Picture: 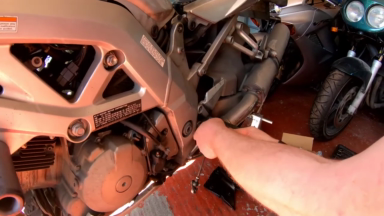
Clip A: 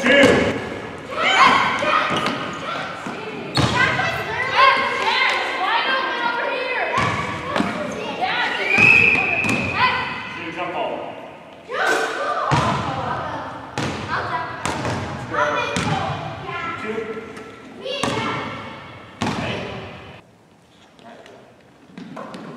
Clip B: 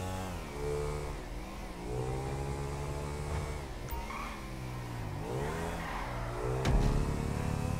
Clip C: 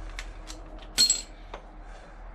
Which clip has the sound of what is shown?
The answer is C